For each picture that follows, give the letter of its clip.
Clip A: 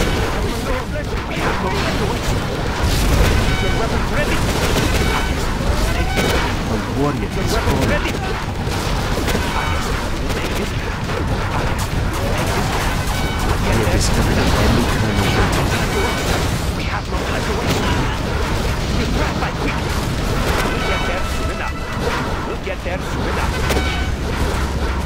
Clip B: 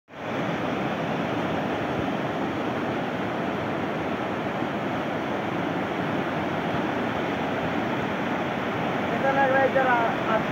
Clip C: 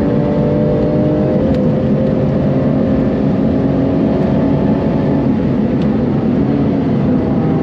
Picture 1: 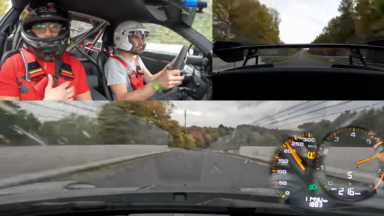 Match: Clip C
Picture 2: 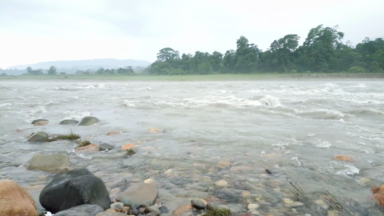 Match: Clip B